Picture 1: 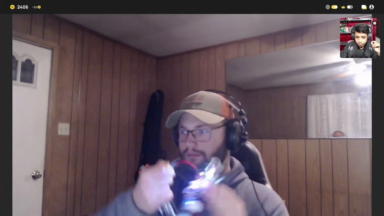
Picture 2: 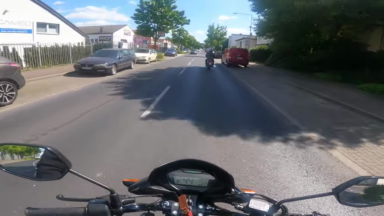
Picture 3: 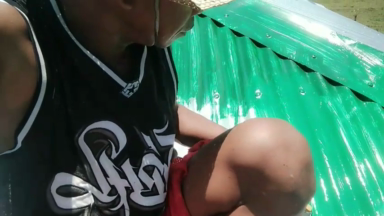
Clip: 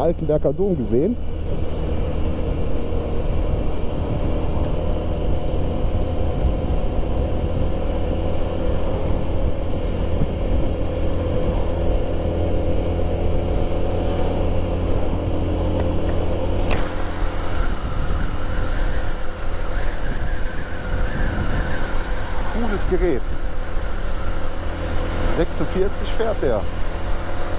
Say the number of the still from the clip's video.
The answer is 2